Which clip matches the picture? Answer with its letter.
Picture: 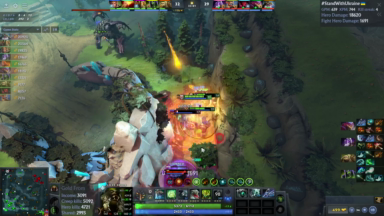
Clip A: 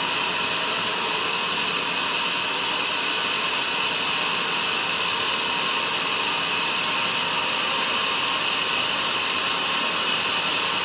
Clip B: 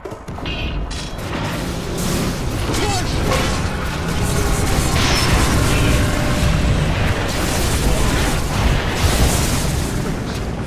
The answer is B